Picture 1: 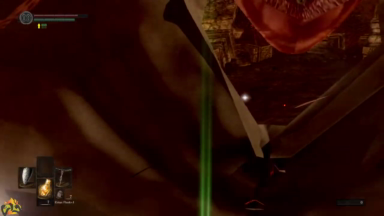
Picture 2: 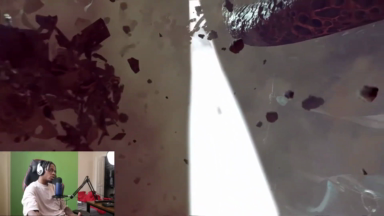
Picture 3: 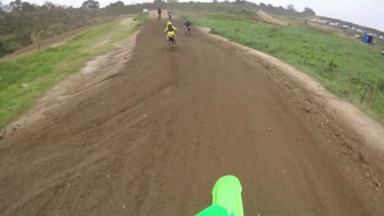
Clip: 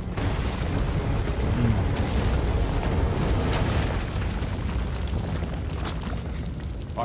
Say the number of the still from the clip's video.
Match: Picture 2